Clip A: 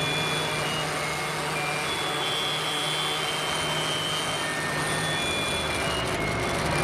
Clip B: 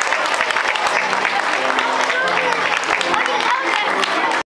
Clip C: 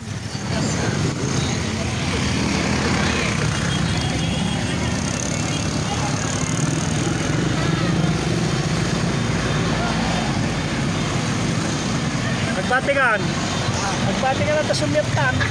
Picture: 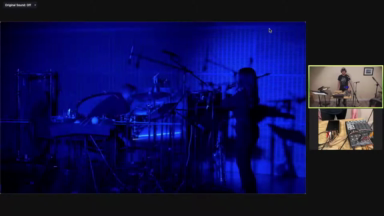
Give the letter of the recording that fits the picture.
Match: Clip A